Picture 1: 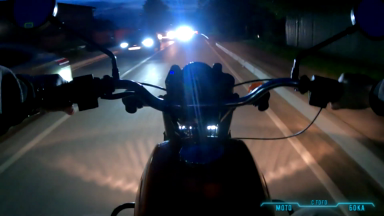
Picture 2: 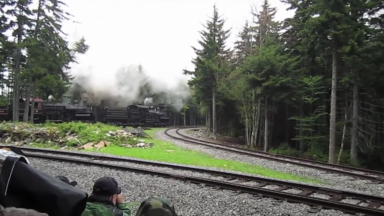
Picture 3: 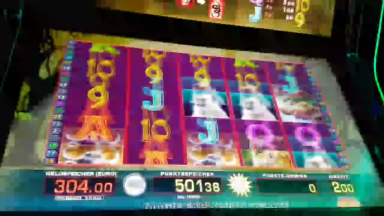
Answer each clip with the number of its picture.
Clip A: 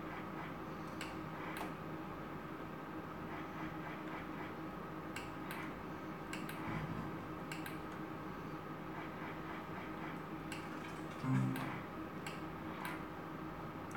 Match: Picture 3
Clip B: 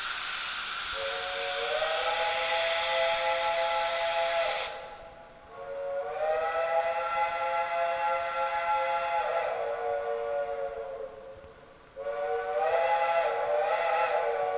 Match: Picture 2